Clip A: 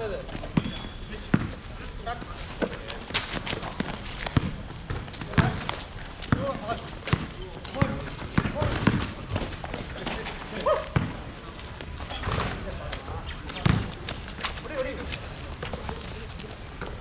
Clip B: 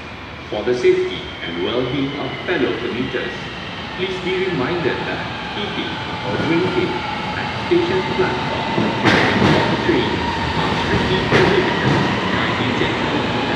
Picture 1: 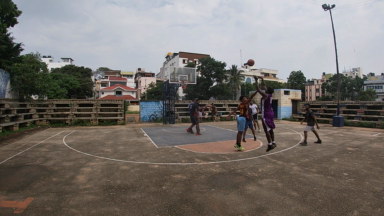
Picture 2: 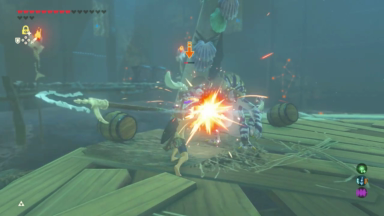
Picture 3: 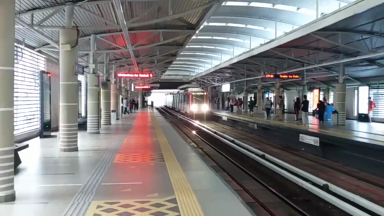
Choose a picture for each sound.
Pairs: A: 1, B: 3